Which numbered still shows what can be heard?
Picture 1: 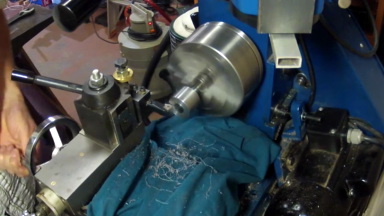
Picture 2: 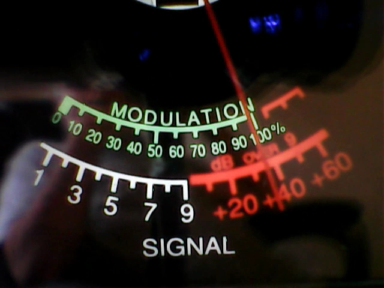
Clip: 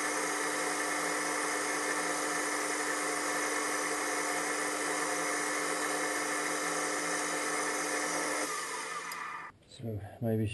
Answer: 1